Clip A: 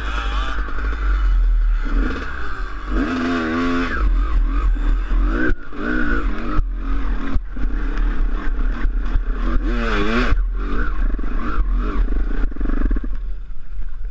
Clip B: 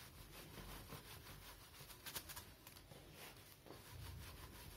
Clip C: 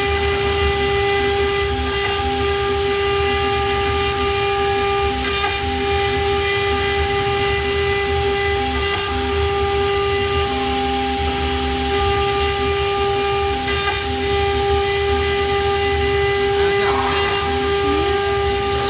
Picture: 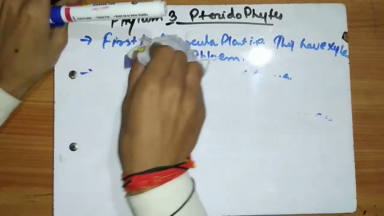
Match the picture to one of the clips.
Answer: B